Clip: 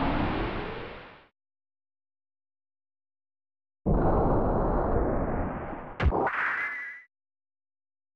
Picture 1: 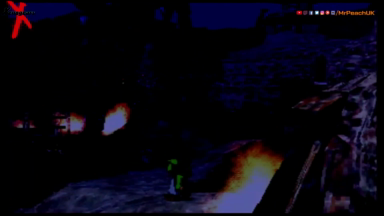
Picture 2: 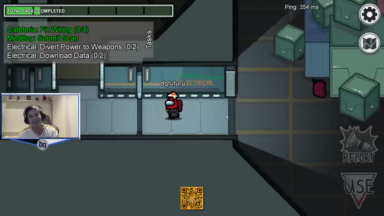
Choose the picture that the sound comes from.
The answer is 1